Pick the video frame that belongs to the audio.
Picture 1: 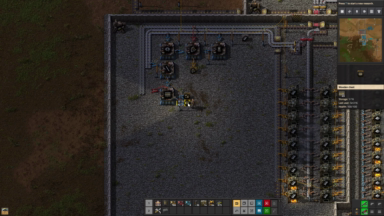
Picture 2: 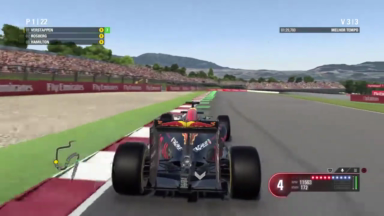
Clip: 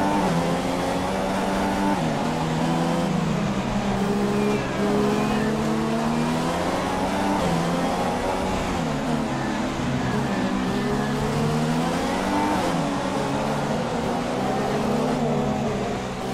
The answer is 2